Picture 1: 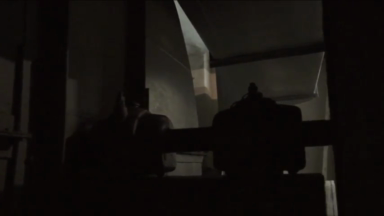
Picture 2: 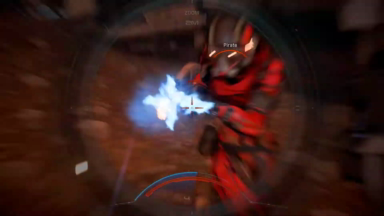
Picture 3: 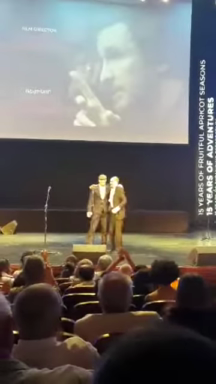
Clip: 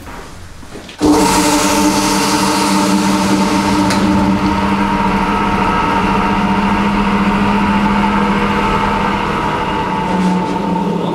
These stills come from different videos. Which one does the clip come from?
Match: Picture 1